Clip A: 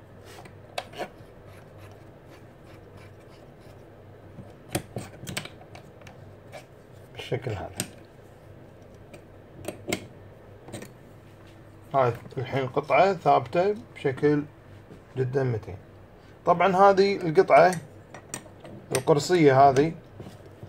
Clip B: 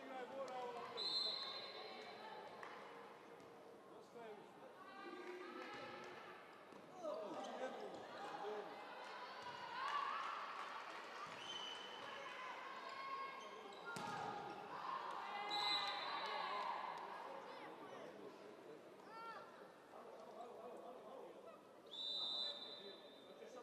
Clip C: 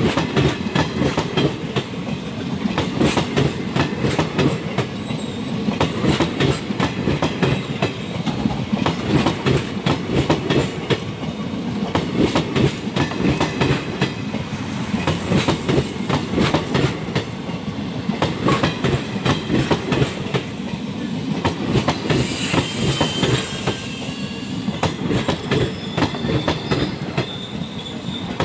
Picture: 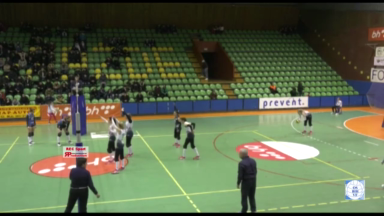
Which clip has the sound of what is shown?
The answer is B